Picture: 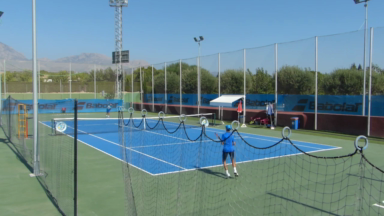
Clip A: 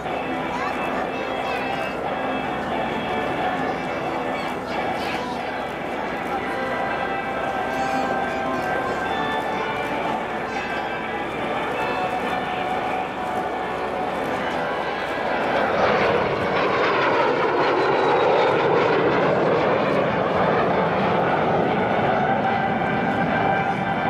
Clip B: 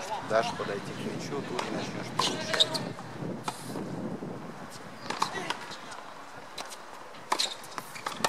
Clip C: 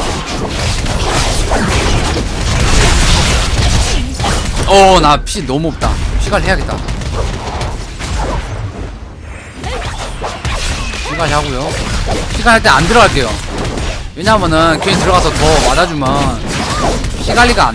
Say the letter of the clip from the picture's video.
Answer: B